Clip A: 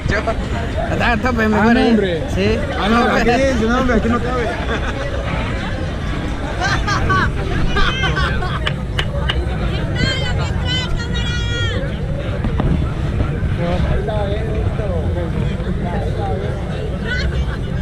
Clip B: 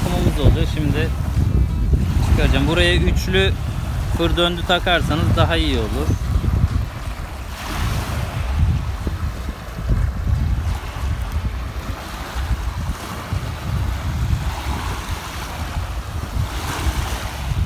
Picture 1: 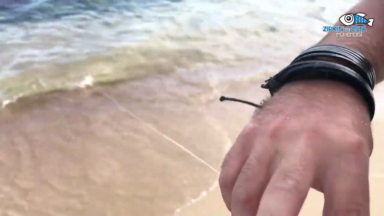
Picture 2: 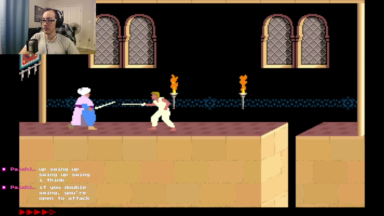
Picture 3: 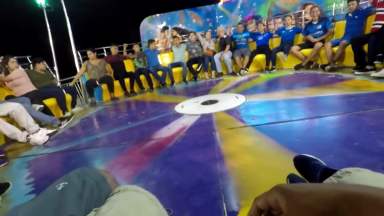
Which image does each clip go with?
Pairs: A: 3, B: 1